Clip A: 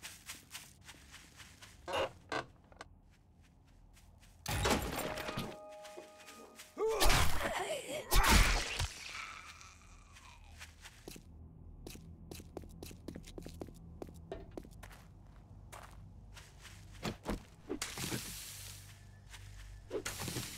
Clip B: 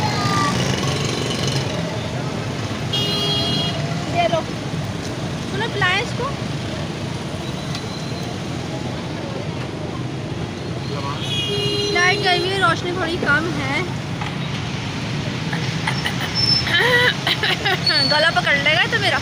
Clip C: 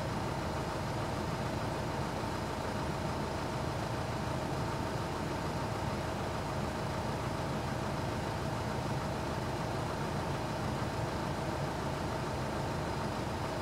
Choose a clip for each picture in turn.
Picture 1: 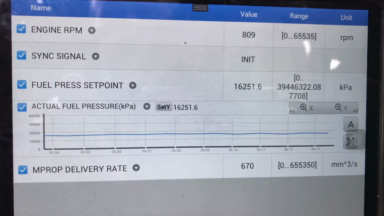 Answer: C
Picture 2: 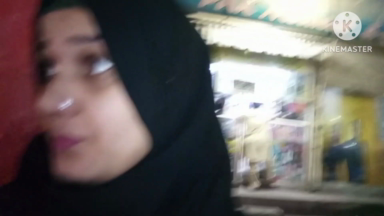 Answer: B